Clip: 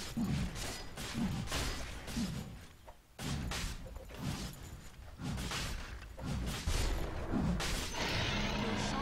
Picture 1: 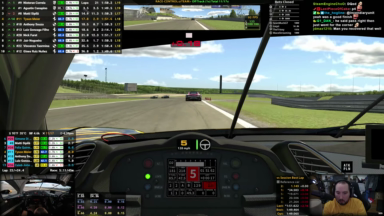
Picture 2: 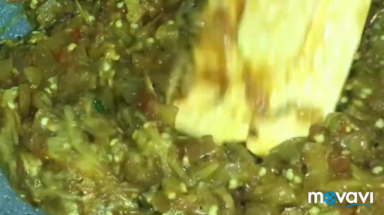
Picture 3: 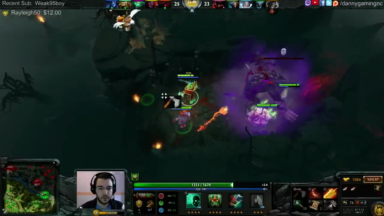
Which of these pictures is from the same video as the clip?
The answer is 3